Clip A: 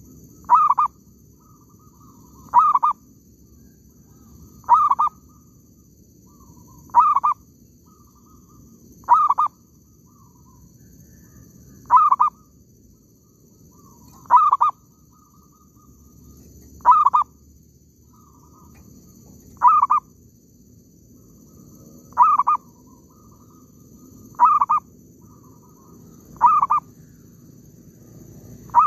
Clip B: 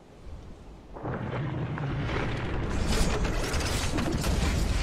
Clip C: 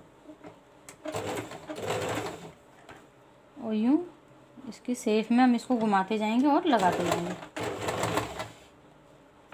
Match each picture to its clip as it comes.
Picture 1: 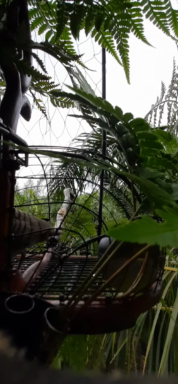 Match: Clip A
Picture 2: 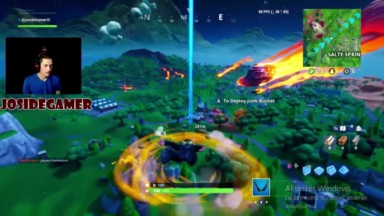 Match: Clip B